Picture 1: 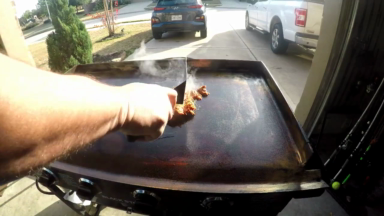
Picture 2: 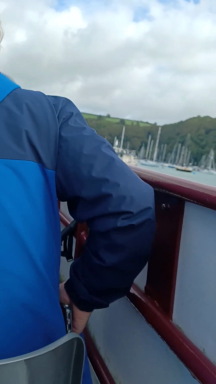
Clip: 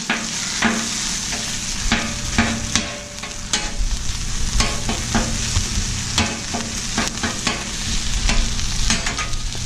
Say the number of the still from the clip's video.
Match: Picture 1